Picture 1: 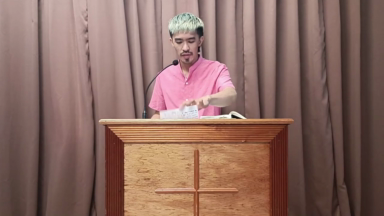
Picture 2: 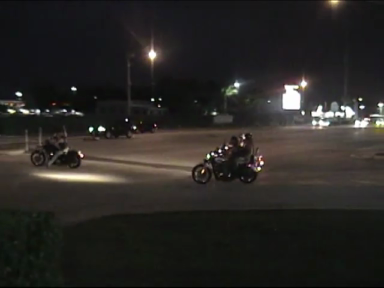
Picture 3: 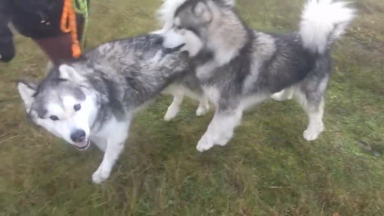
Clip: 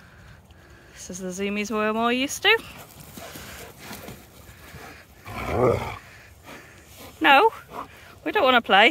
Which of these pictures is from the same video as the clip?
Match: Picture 3